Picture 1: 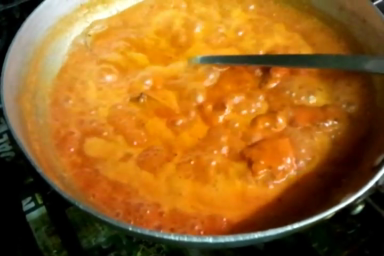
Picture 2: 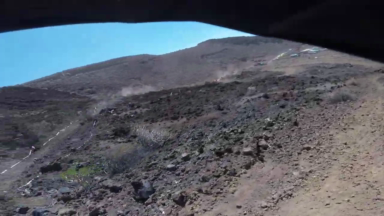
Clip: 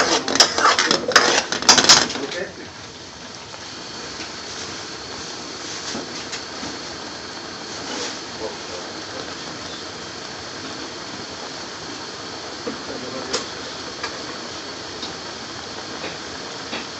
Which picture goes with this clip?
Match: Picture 1